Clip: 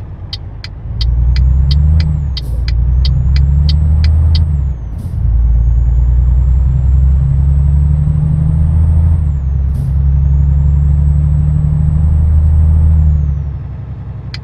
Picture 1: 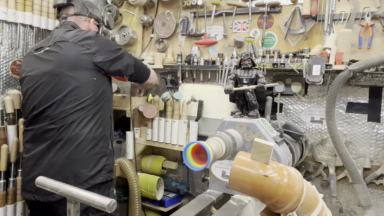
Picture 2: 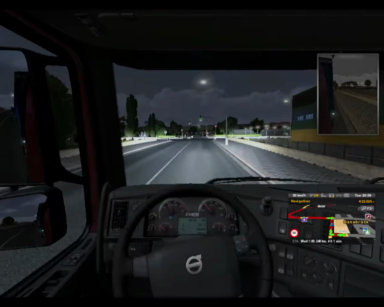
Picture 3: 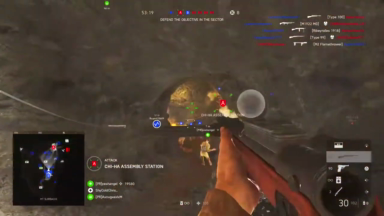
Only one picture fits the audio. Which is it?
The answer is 2